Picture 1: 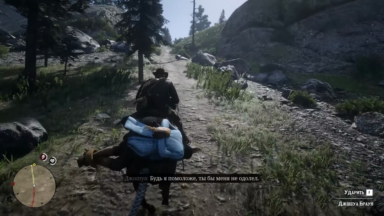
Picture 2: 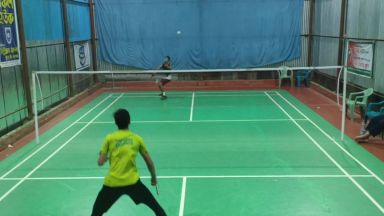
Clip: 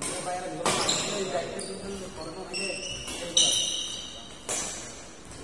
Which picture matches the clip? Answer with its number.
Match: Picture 2